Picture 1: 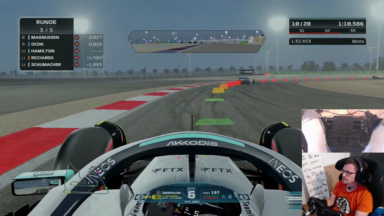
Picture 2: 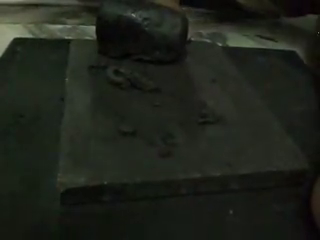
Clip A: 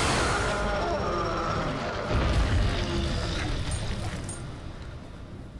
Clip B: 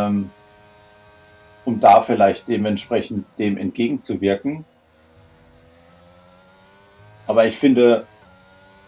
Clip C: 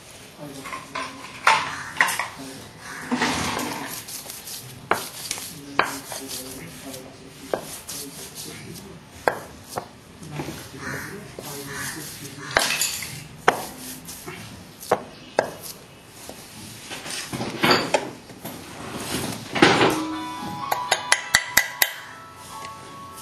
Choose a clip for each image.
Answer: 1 B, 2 C